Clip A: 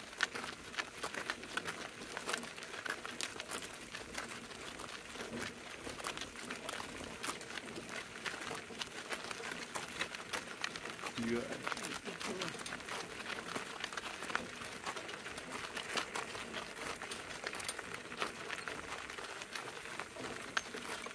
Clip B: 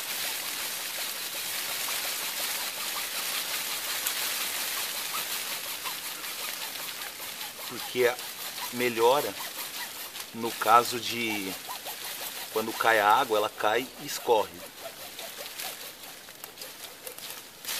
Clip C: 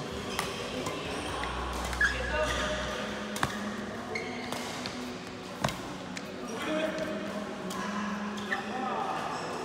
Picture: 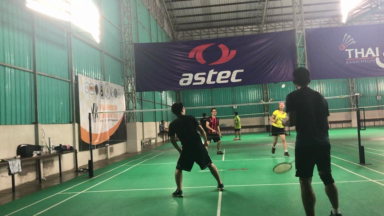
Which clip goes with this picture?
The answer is C